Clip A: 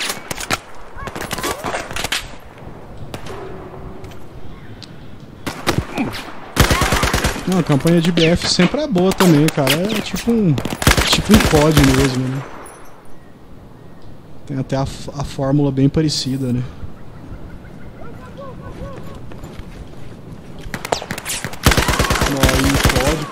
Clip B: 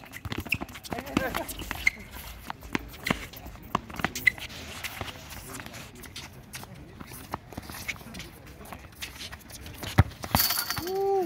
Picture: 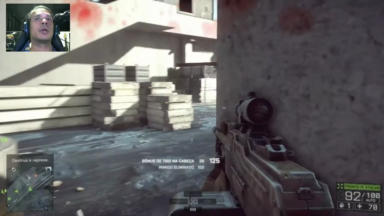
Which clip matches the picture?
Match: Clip A